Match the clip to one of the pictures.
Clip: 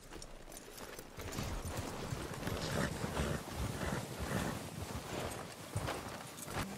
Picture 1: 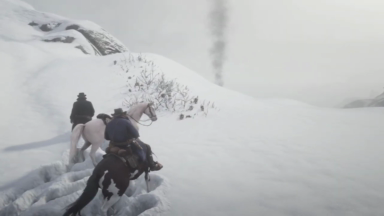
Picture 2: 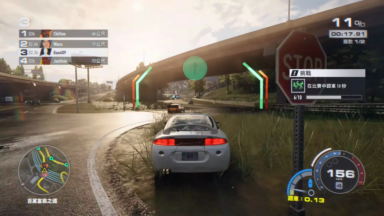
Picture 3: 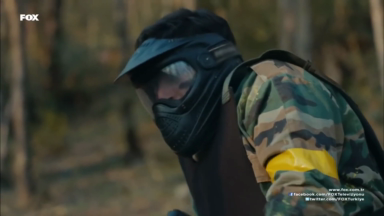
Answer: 1